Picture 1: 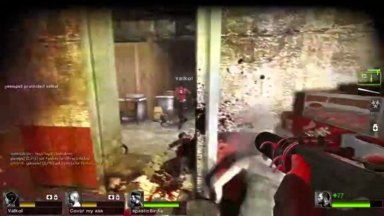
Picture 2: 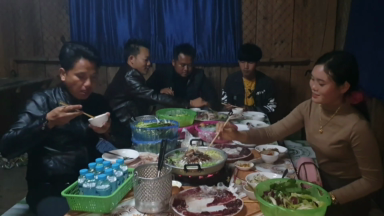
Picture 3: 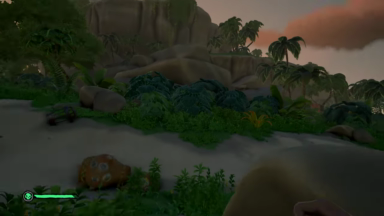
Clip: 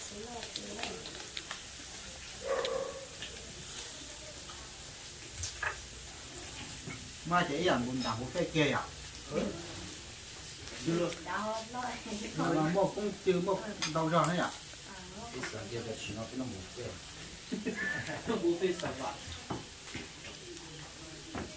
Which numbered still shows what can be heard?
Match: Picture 2